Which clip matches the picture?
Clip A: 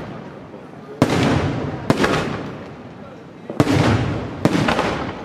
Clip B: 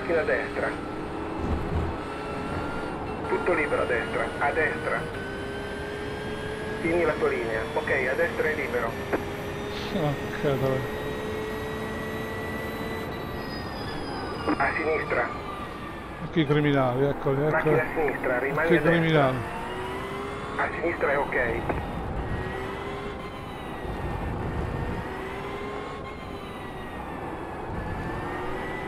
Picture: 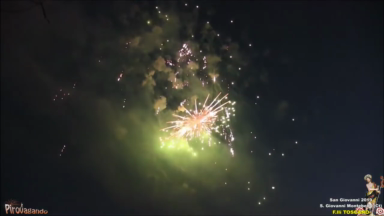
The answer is A